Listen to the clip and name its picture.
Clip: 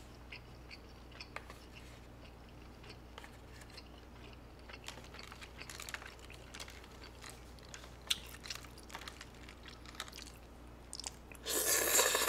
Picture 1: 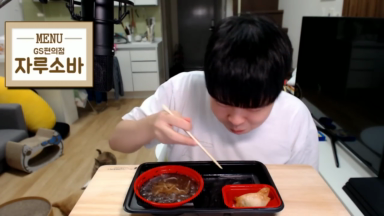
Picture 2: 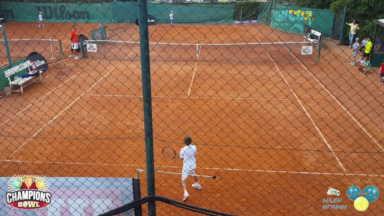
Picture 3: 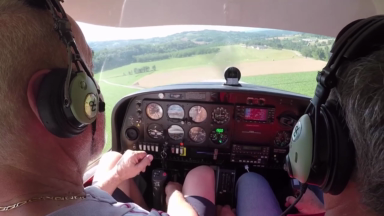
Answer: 1